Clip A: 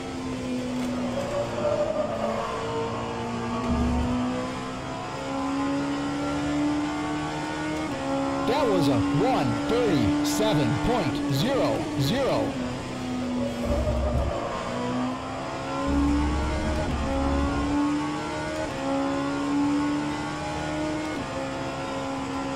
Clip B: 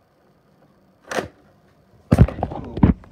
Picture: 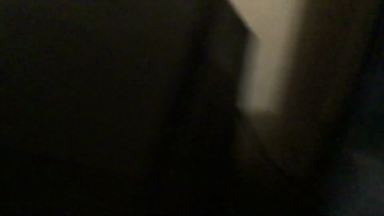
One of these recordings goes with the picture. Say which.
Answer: B